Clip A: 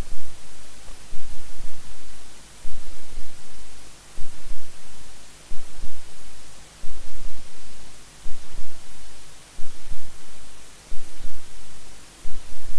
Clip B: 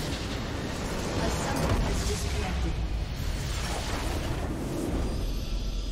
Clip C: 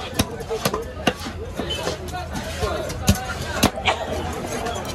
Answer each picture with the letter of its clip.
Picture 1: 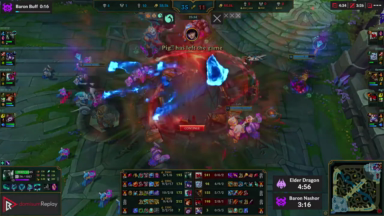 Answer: B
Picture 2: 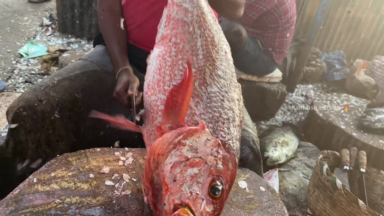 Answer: C